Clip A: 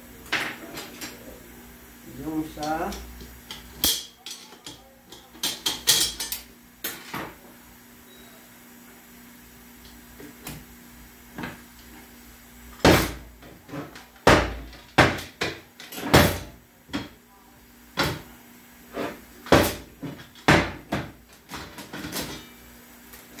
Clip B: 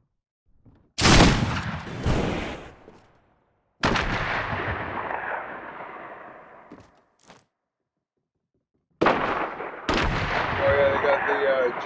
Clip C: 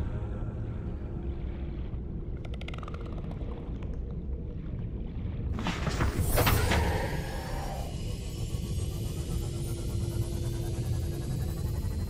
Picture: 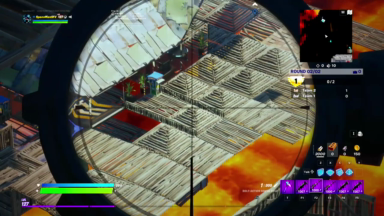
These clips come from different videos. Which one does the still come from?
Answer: B